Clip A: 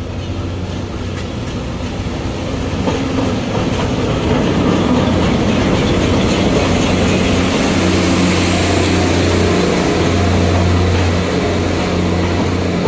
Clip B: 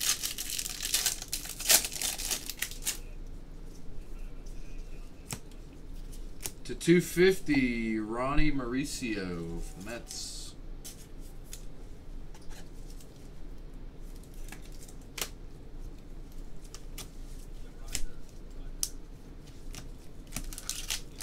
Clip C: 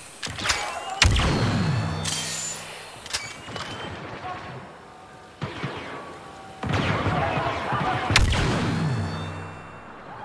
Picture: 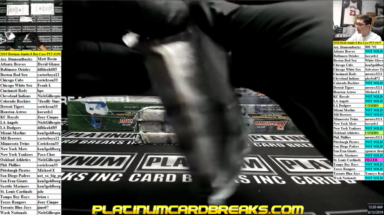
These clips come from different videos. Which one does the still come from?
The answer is B